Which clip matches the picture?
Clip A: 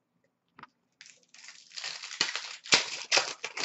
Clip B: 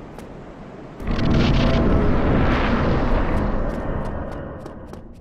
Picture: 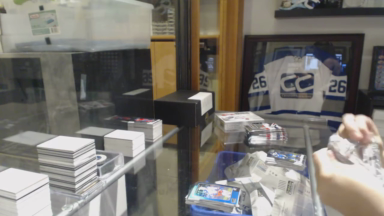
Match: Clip A